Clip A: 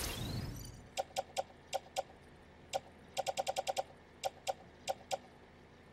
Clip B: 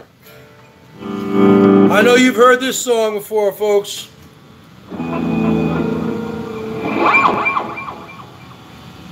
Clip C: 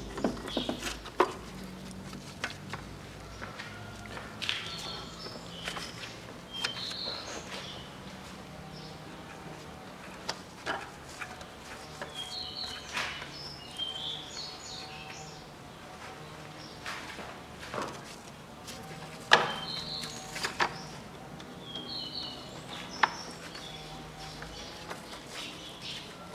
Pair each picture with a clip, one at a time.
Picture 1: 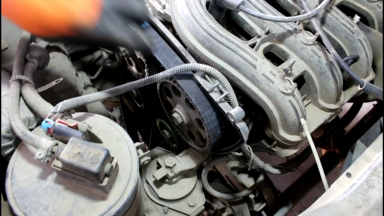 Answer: C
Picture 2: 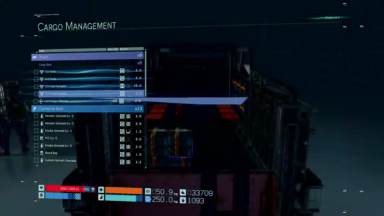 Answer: A